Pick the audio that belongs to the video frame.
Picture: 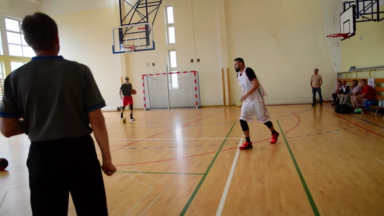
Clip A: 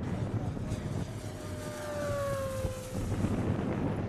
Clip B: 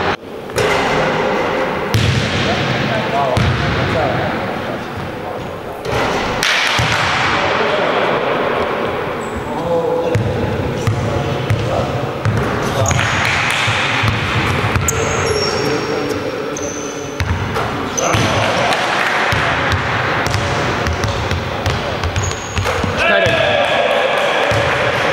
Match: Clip B